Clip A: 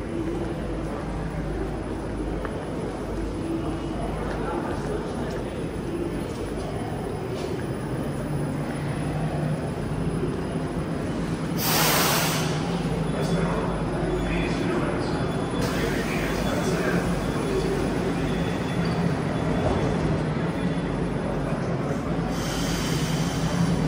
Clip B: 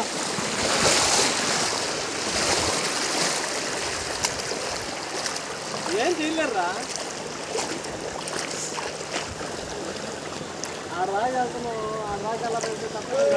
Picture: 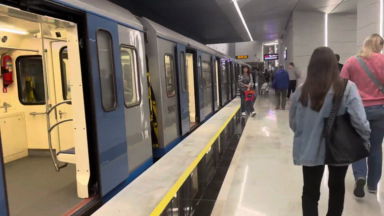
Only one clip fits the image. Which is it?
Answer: A